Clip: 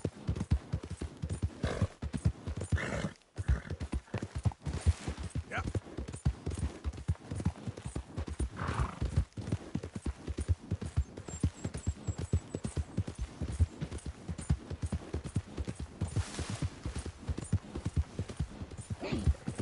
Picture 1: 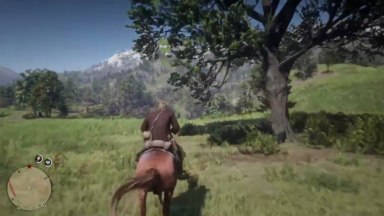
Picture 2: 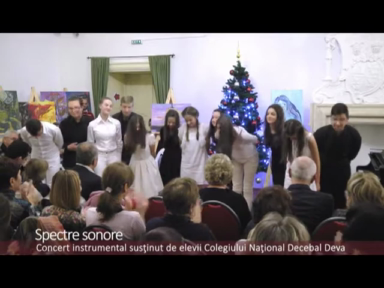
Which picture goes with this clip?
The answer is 1